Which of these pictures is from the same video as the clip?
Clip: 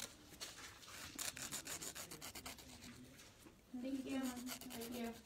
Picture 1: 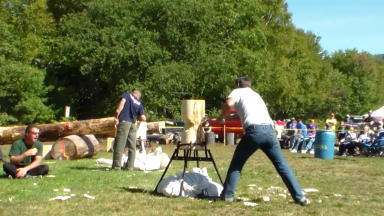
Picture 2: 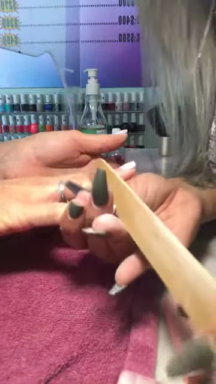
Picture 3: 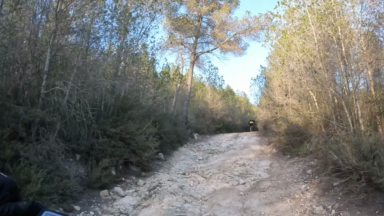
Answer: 2